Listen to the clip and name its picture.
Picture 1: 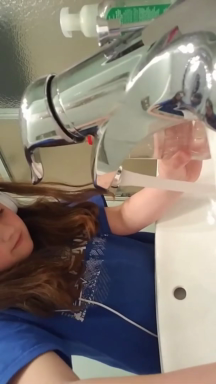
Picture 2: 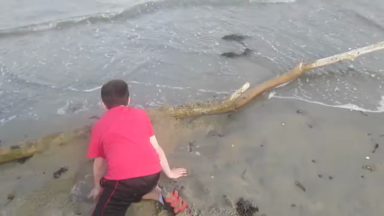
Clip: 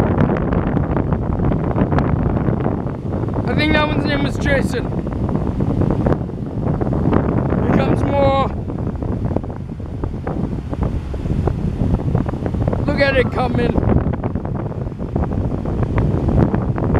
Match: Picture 2